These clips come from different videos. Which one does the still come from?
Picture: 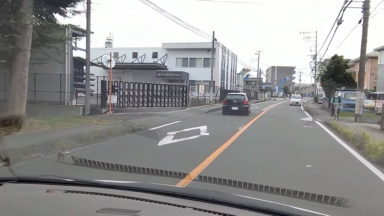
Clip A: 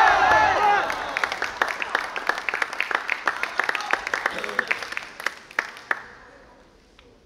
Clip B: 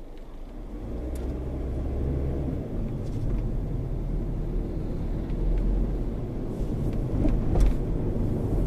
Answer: B